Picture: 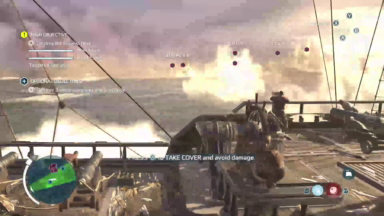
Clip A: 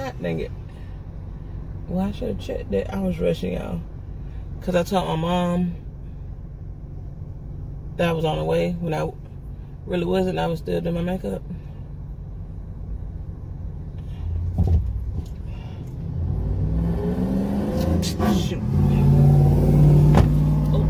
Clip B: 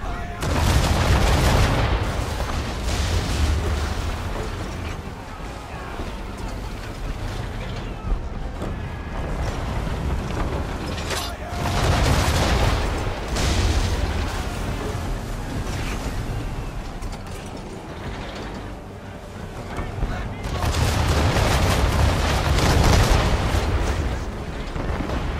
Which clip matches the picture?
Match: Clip B